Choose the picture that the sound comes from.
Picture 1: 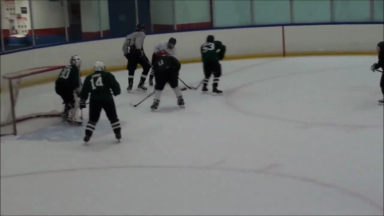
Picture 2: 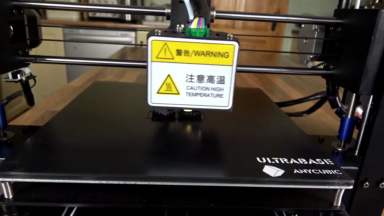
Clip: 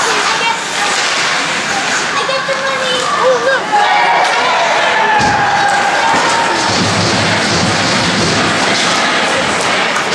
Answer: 1